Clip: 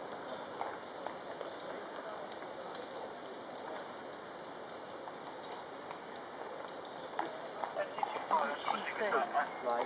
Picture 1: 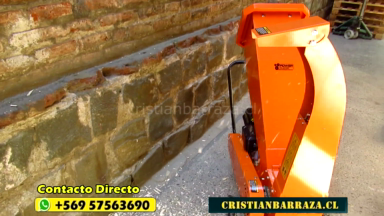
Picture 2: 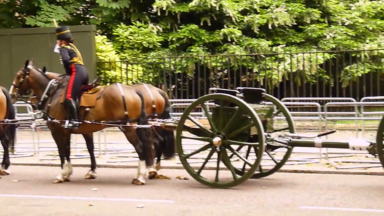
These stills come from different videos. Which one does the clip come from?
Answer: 2